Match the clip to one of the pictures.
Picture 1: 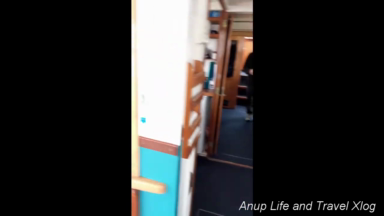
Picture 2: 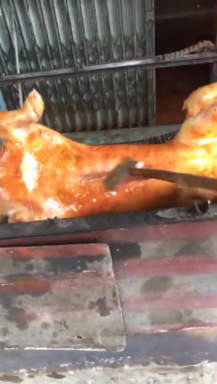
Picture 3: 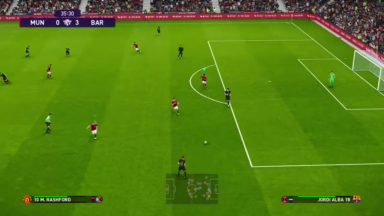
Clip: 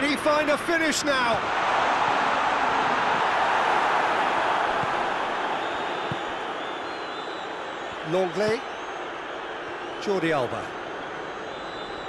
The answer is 3